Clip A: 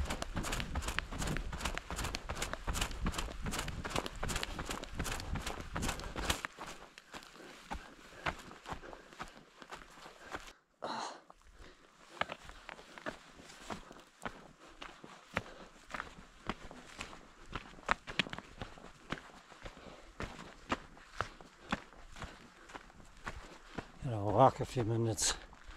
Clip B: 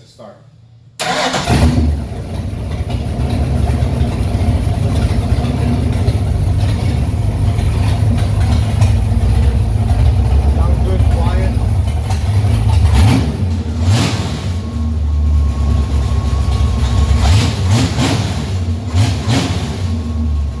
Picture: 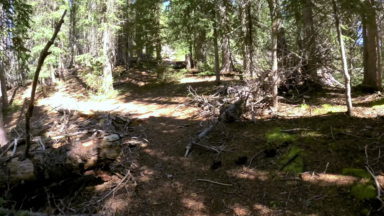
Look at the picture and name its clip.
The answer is A